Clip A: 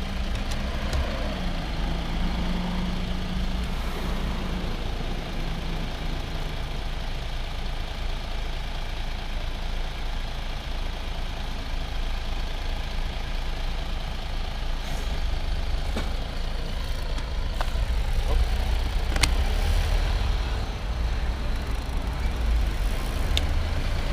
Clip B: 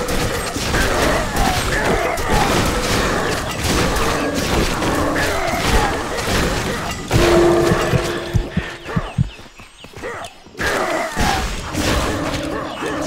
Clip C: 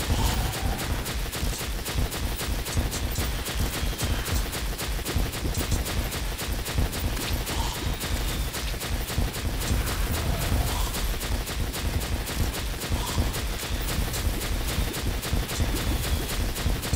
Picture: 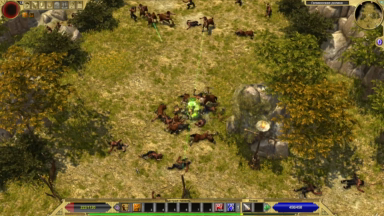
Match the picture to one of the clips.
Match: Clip B